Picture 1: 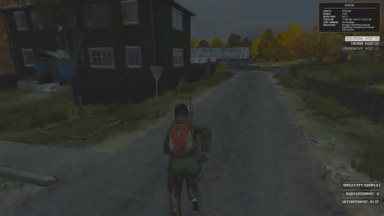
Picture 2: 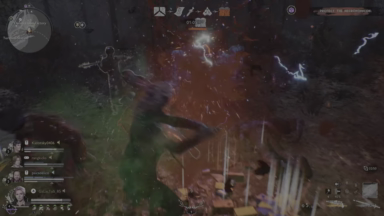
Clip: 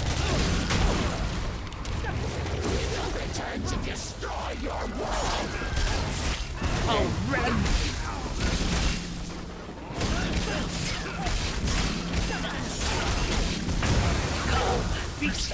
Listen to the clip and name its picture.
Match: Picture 2